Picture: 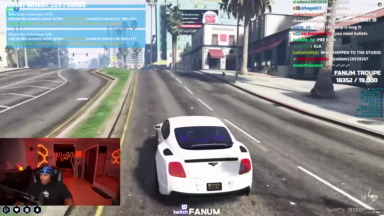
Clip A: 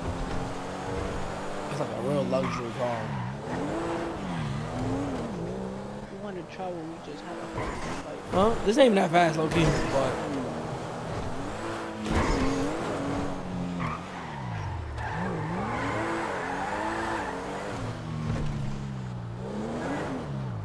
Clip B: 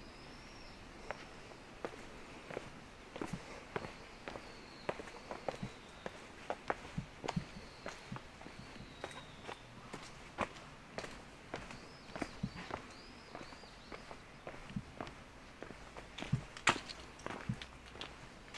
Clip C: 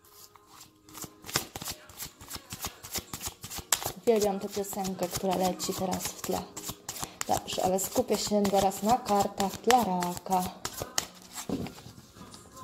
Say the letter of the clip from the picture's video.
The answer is A